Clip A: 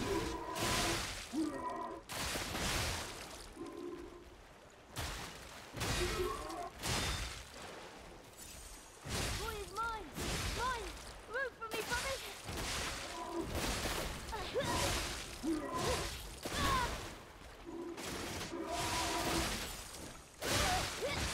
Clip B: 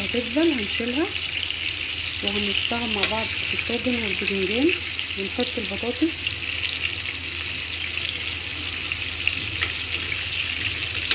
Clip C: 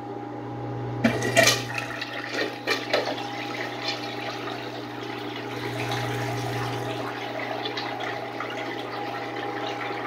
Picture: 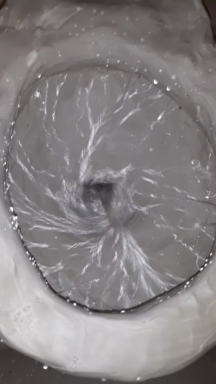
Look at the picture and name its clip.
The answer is C